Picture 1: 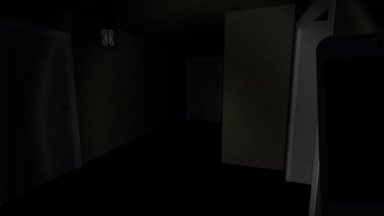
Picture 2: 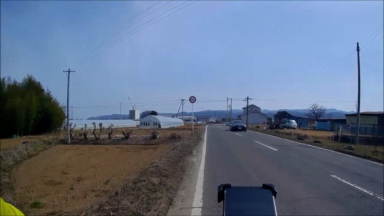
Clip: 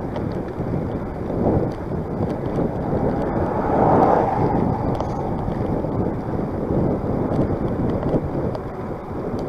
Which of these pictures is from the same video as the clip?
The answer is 2